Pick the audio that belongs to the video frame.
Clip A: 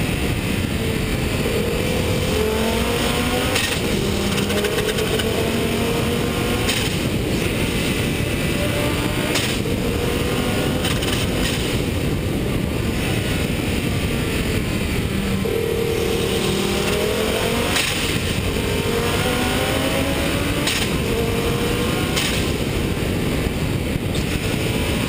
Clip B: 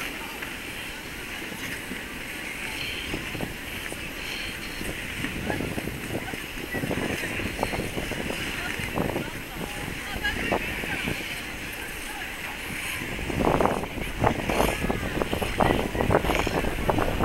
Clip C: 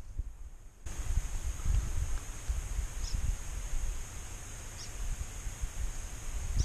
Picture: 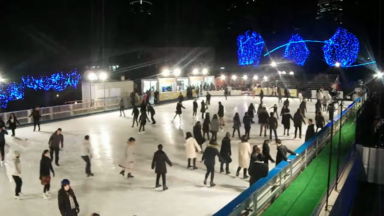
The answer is B